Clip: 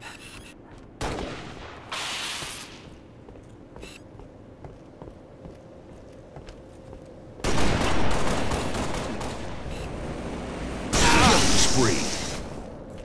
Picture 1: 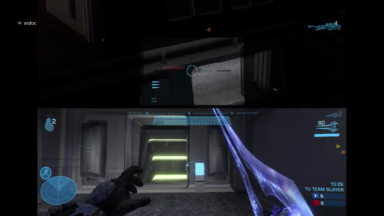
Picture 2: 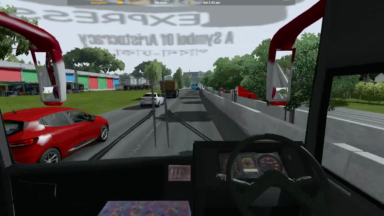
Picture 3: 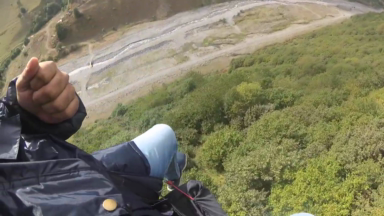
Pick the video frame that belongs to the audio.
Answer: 1